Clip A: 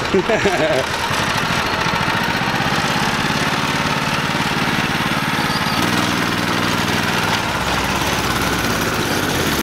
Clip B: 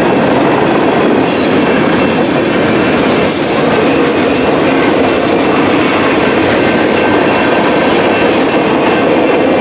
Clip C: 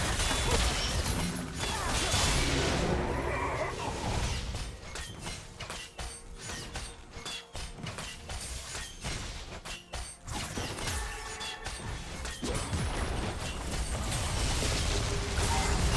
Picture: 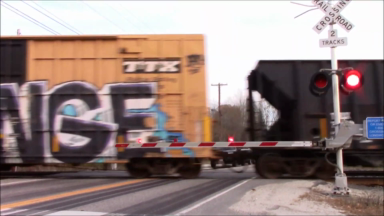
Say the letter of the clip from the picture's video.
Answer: B